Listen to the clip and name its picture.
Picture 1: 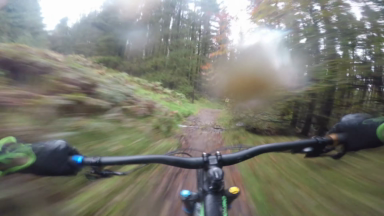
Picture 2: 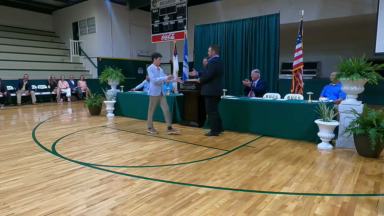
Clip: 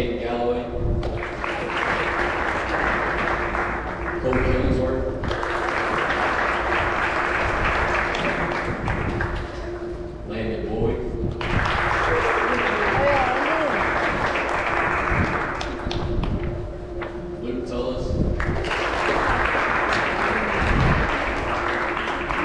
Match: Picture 2